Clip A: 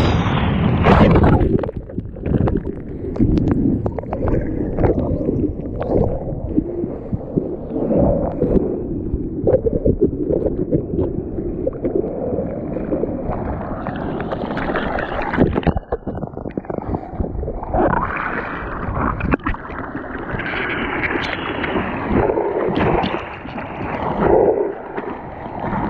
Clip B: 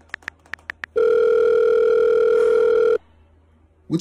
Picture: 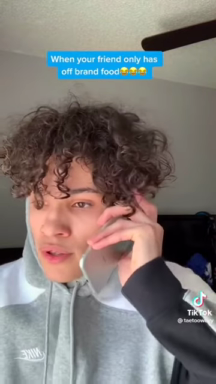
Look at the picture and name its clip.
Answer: B